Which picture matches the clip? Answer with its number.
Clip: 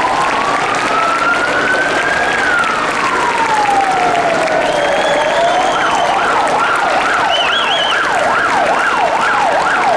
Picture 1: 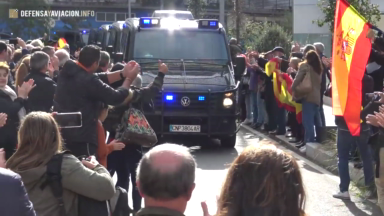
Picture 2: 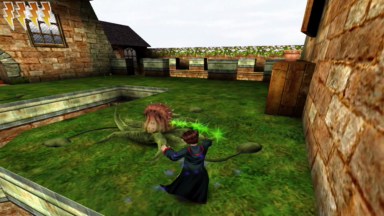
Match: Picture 1